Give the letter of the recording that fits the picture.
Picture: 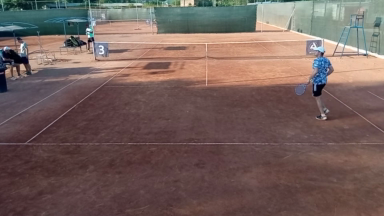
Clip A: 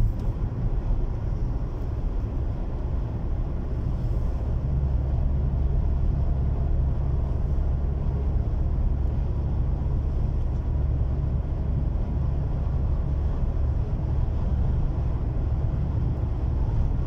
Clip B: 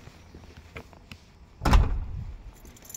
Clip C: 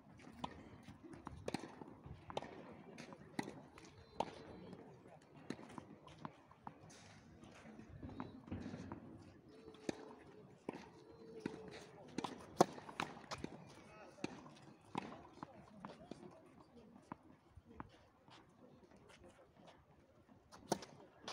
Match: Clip C